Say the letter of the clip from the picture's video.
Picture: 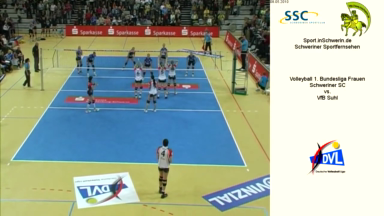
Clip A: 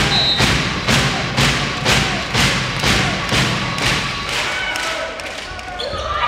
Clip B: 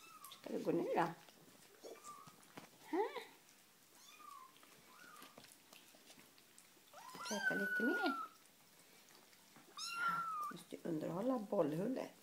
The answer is A